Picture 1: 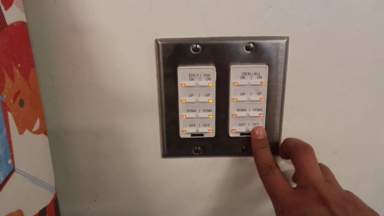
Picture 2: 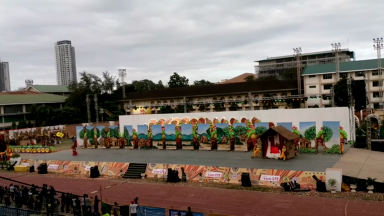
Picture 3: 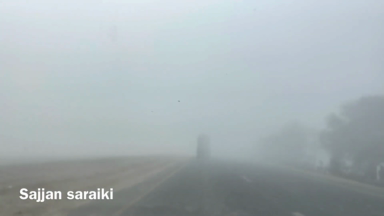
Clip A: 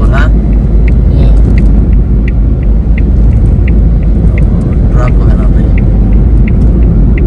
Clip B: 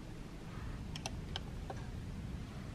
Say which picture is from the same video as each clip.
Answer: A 3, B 1